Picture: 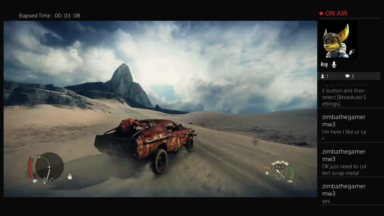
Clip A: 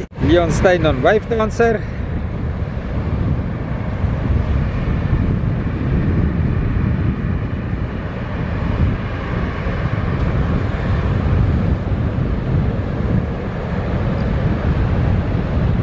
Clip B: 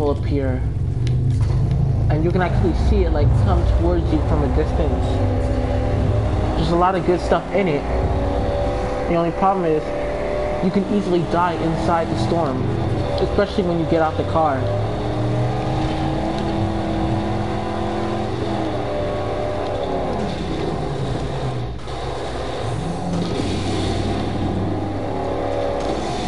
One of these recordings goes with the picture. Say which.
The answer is B